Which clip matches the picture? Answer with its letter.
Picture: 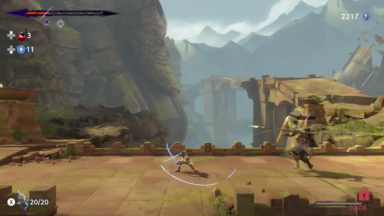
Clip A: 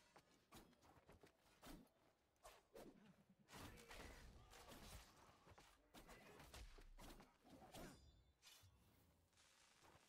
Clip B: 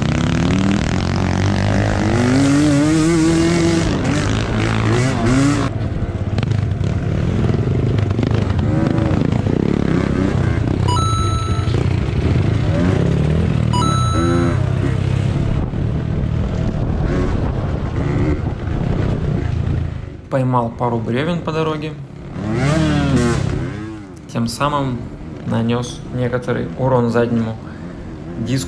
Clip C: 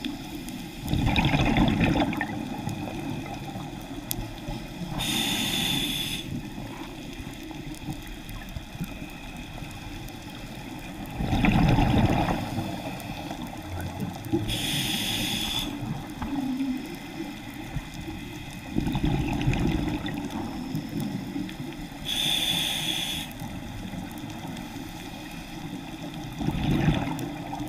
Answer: A